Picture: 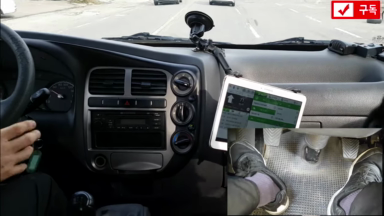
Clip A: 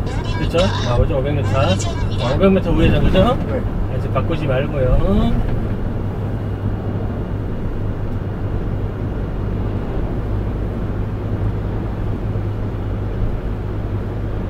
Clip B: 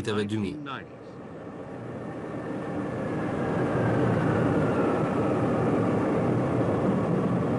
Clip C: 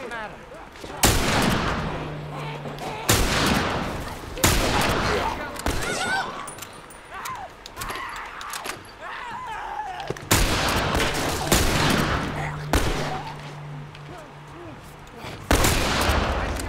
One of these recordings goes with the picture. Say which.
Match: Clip A